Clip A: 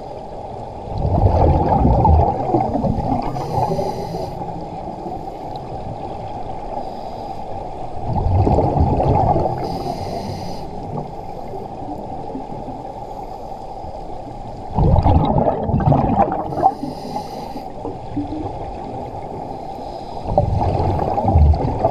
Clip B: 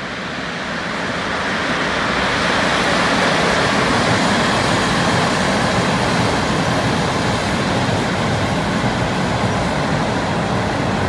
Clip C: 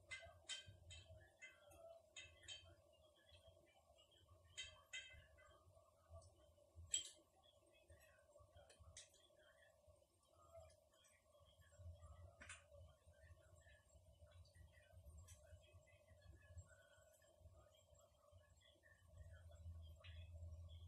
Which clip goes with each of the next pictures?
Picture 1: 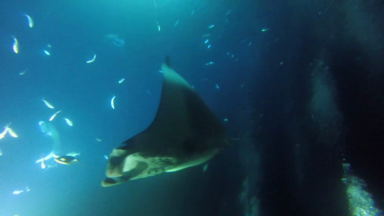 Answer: A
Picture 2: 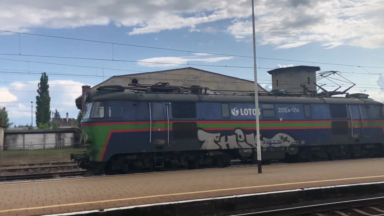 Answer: B